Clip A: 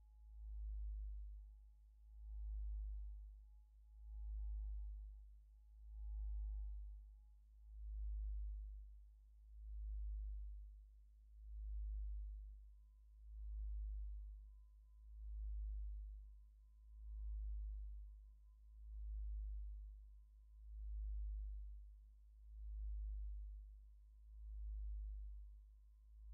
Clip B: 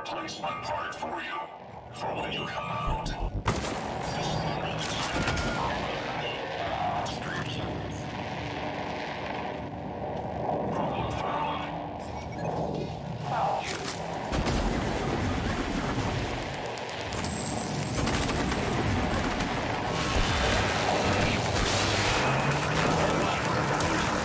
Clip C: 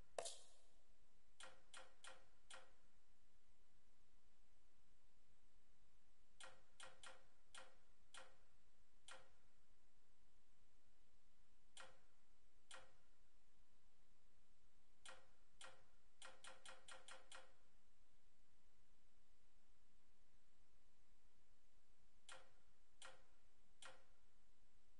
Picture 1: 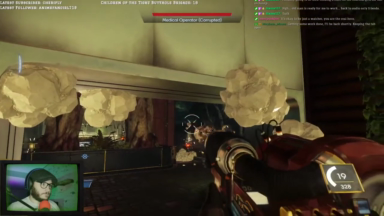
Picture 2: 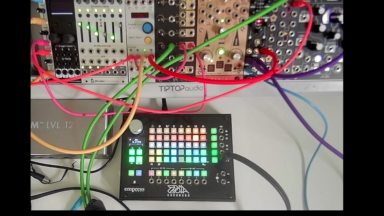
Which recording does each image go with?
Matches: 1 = B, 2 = A